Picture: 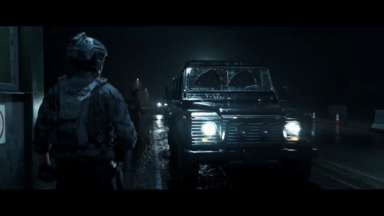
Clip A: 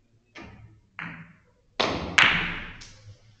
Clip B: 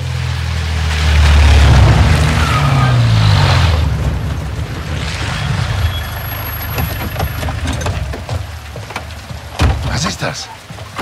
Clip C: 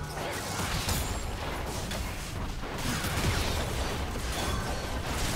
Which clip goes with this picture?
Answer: B